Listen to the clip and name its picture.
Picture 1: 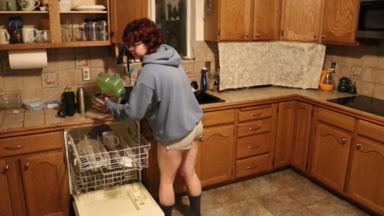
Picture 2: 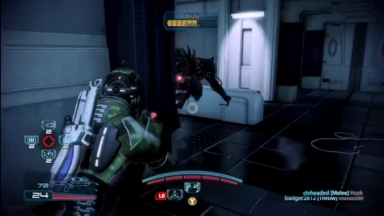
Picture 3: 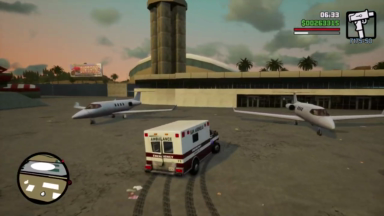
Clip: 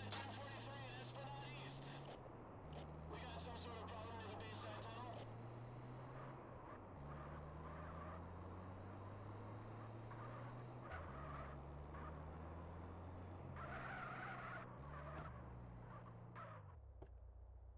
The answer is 3